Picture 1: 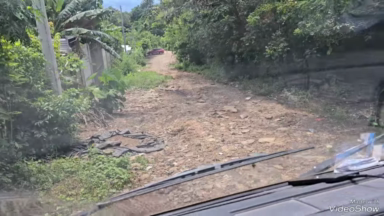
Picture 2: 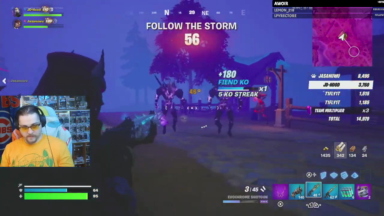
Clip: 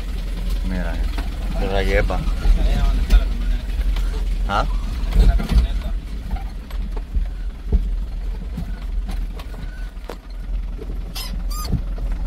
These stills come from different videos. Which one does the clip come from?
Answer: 1